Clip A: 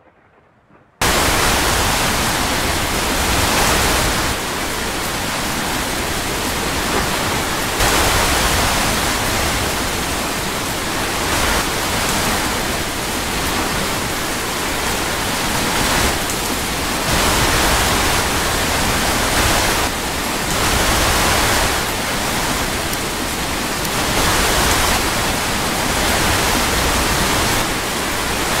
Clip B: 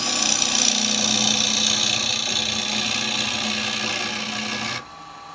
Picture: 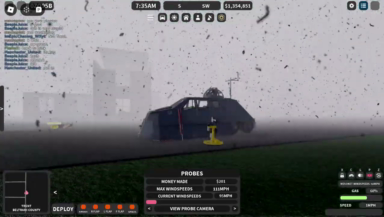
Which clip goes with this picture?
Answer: A